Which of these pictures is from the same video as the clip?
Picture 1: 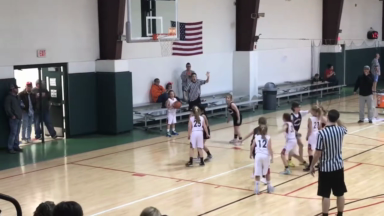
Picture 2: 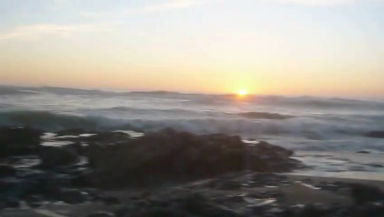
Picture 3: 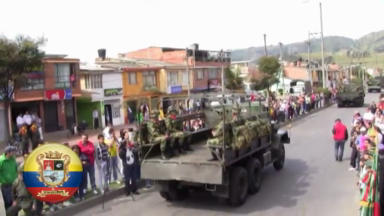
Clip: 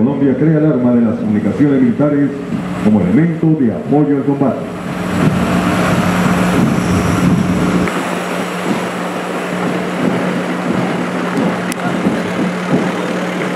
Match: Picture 3